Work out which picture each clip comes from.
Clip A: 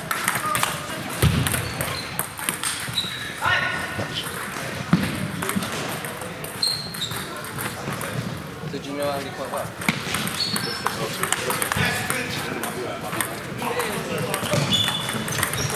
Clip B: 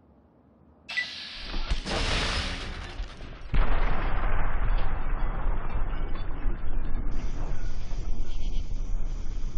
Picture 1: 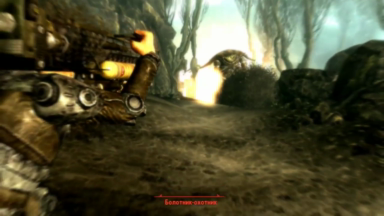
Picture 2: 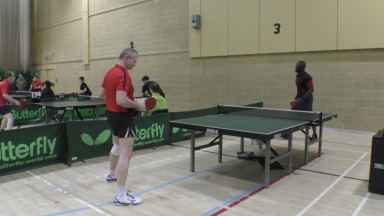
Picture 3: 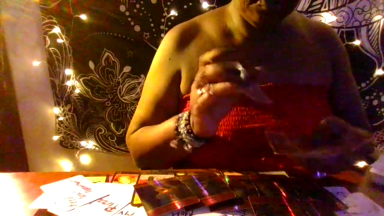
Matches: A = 2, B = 1